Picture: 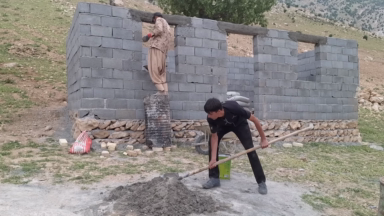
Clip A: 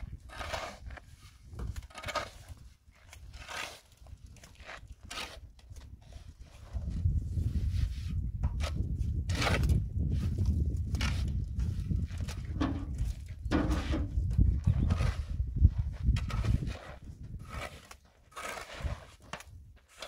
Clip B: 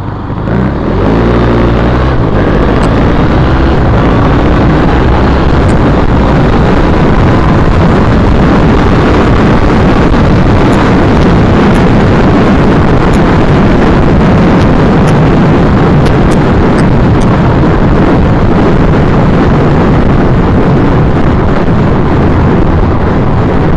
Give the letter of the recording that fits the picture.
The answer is A